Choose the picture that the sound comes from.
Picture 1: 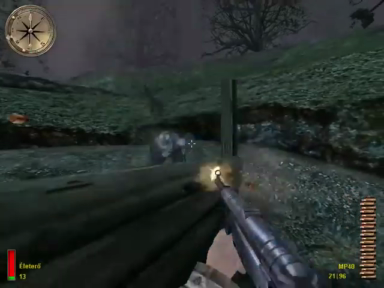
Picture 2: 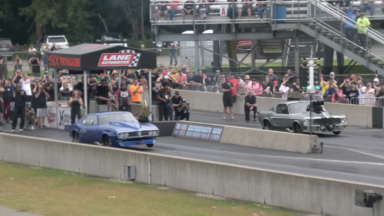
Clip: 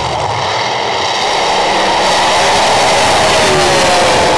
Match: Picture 2